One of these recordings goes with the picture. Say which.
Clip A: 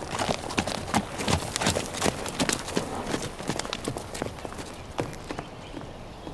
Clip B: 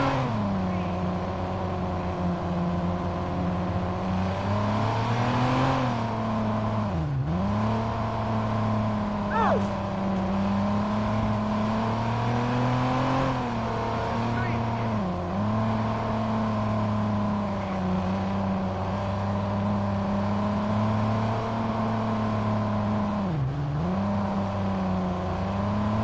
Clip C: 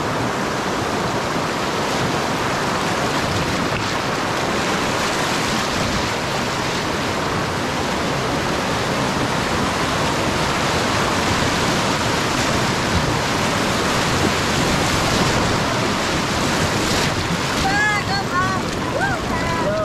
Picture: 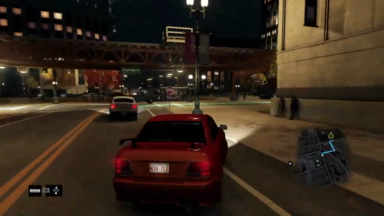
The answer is B